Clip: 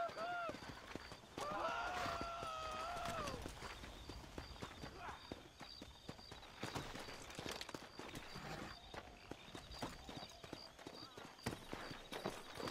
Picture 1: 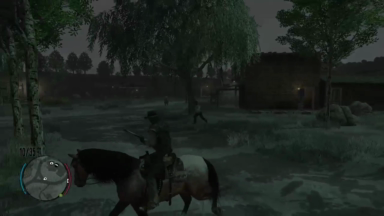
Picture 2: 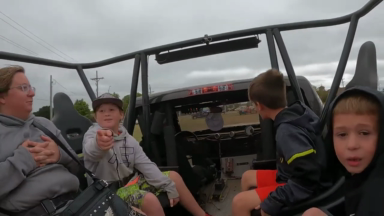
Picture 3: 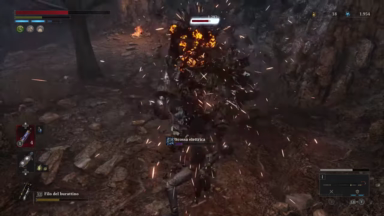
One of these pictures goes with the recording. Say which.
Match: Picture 1